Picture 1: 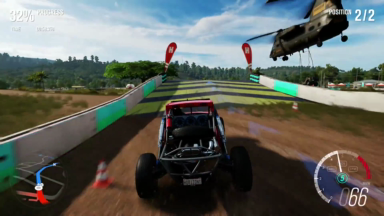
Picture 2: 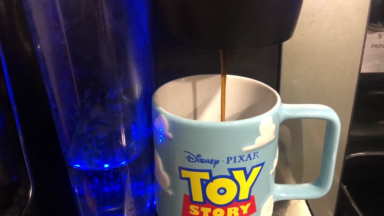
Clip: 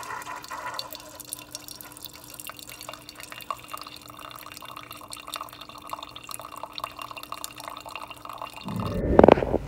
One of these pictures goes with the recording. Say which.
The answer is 2